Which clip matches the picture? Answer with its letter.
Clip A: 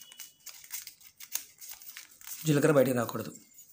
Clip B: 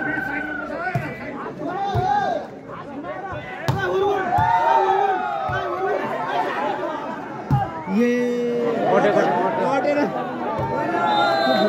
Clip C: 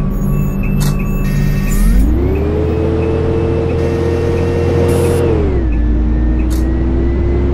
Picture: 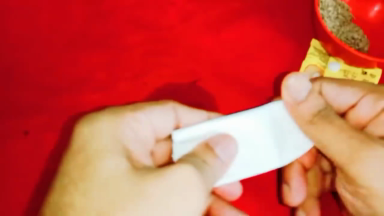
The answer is A